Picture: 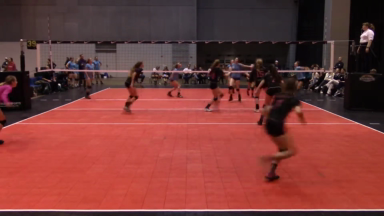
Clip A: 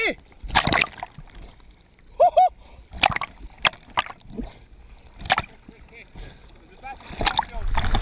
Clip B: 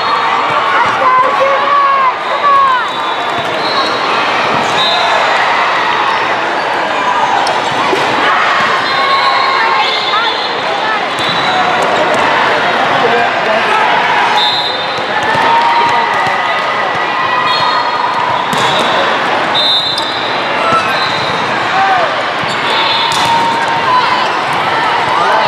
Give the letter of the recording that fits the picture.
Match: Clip B